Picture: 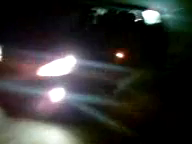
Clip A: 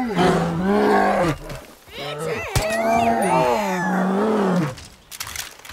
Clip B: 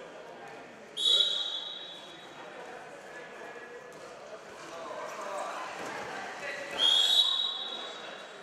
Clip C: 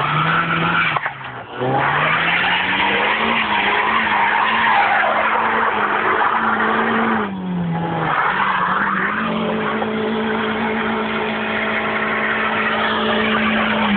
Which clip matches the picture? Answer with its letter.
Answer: C